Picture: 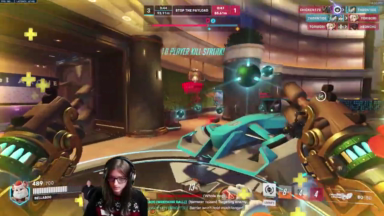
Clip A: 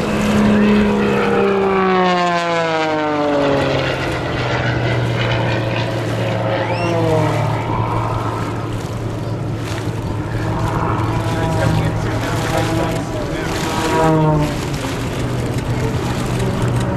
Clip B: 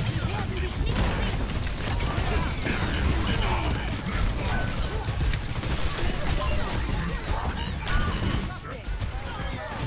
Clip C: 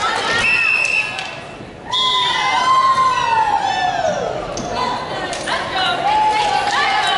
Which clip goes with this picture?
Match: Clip B